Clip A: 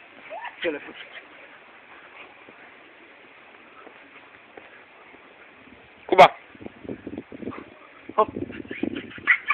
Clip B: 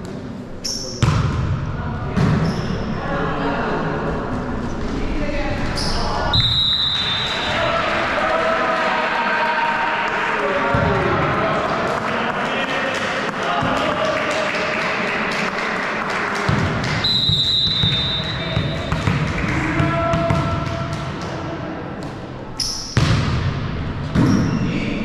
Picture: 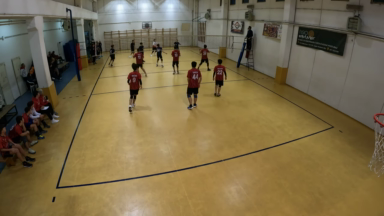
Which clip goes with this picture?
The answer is B